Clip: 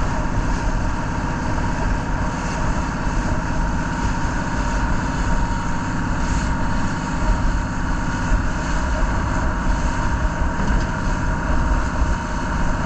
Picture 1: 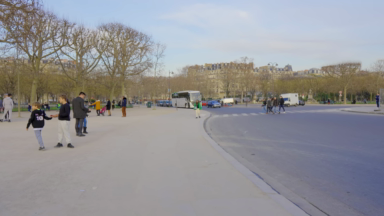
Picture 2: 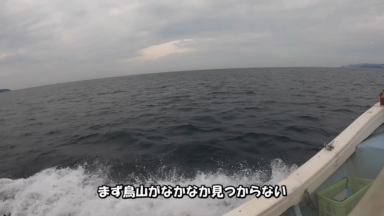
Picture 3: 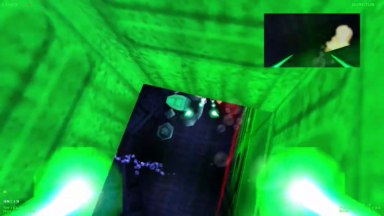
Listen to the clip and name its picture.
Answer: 2